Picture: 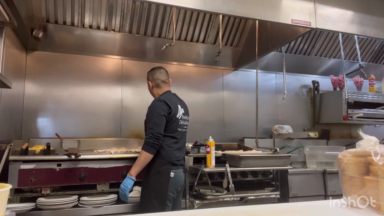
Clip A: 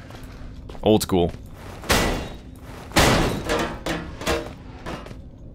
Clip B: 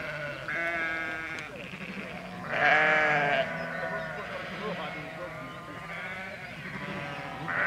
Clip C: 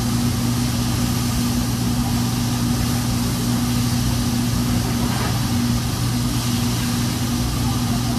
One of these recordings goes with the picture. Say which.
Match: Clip C